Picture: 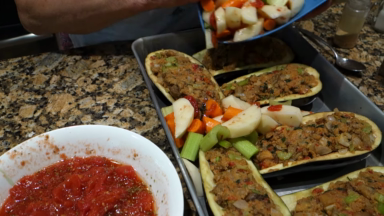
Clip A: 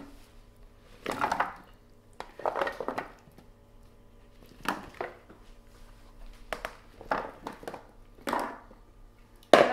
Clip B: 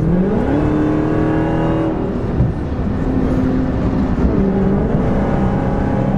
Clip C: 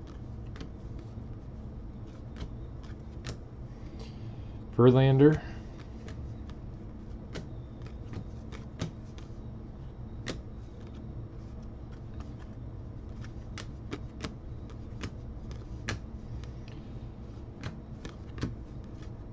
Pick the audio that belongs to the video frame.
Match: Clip A